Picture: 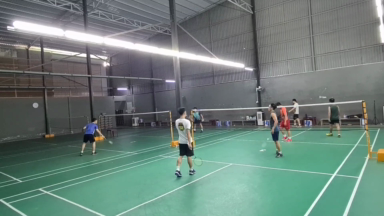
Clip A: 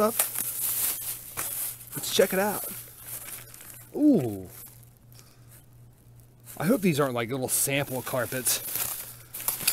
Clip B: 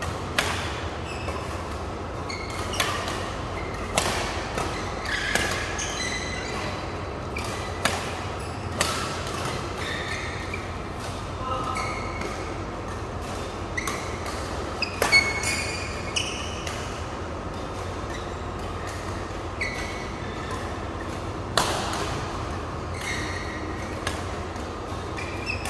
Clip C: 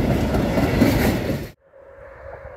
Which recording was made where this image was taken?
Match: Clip B